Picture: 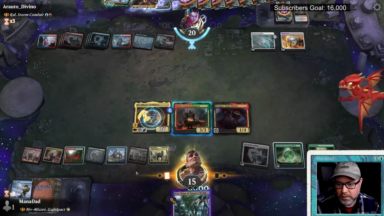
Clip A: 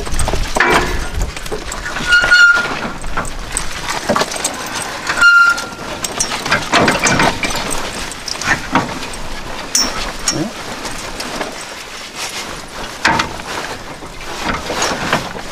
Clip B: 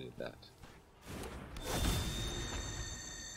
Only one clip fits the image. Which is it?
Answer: B